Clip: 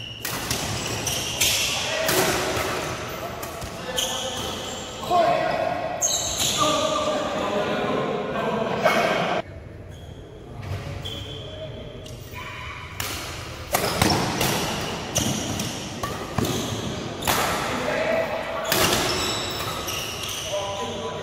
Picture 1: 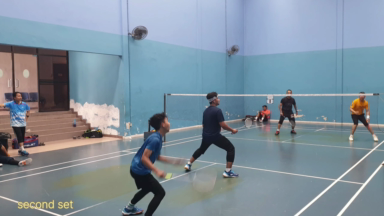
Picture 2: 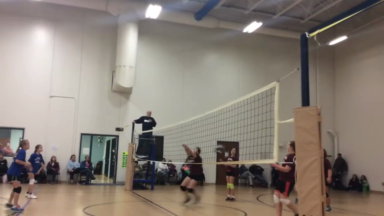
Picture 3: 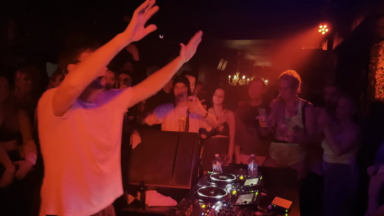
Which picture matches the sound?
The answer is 1